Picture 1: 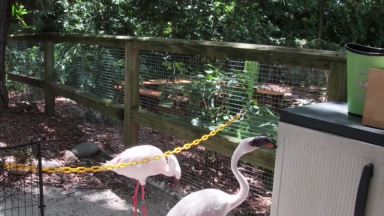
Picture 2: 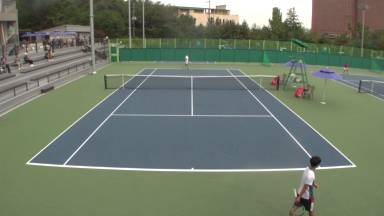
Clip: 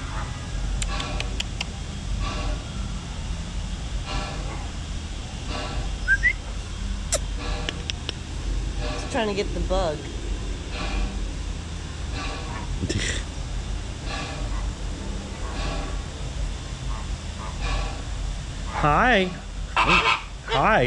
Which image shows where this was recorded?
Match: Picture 1